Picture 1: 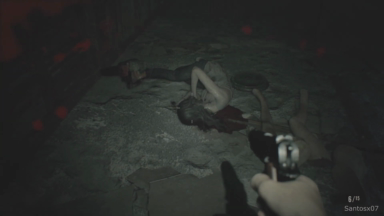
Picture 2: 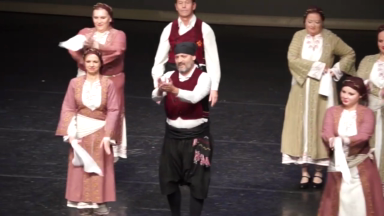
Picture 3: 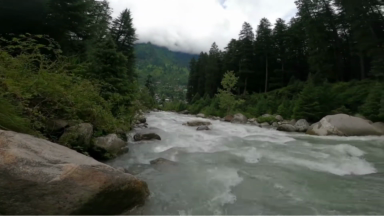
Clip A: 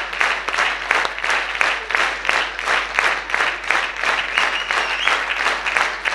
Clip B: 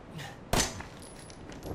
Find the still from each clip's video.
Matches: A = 2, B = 1